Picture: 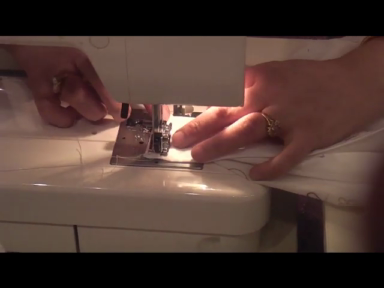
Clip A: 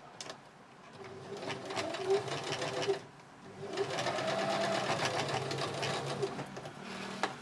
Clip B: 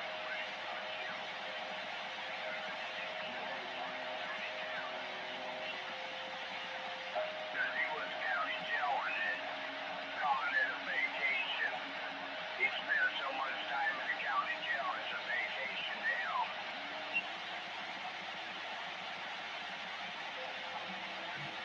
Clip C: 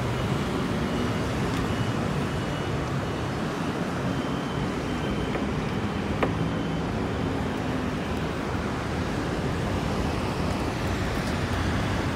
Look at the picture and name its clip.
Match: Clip A